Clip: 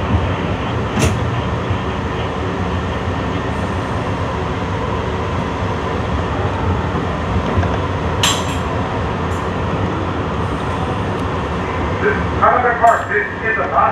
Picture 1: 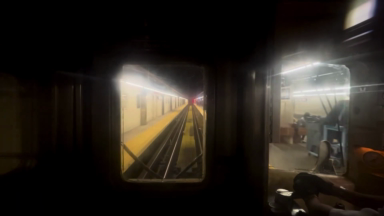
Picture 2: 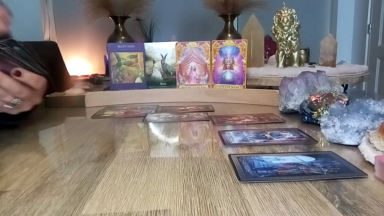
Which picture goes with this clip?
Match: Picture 1